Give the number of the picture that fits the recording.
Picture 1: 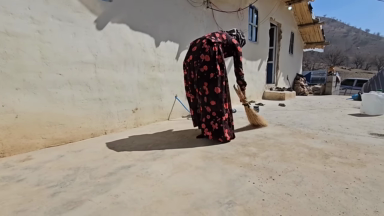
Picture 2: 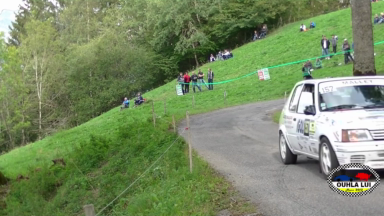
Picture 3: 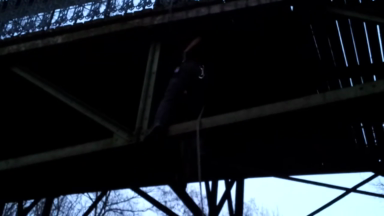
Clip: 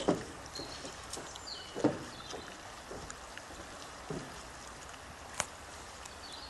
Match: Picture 3